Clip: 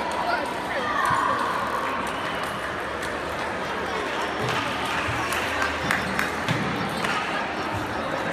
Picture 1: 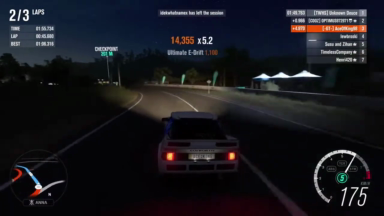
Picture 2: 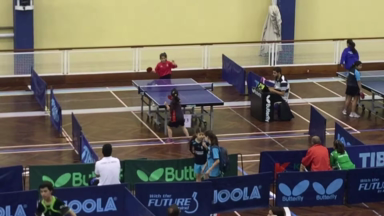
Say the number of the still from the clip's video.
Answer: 2